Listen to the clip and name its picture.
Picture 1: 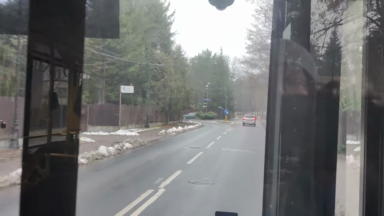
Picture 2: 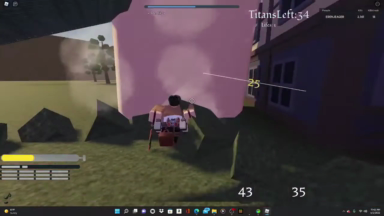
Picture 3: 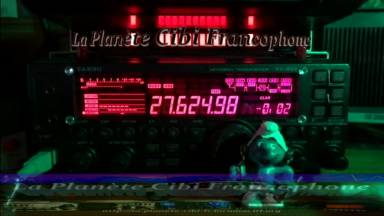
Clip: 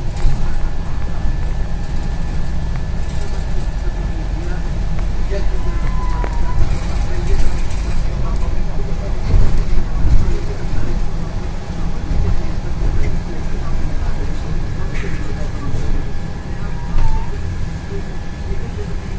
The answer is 1